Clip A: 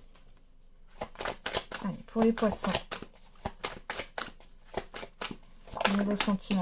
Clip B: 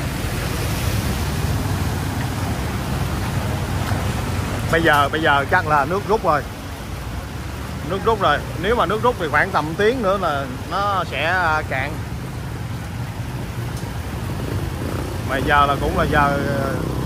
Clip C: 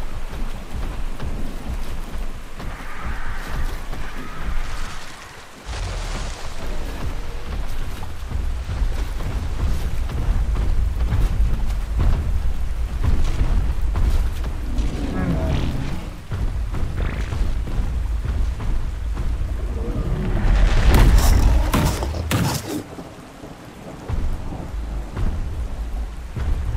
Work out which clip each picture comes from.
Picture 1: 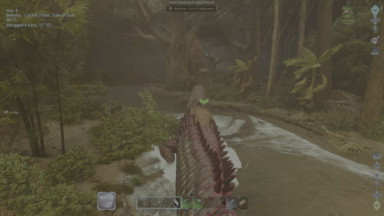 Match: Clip C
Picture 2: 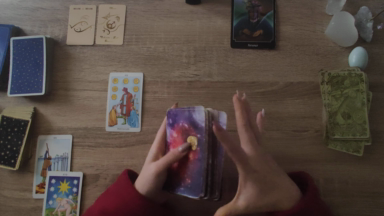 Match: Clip A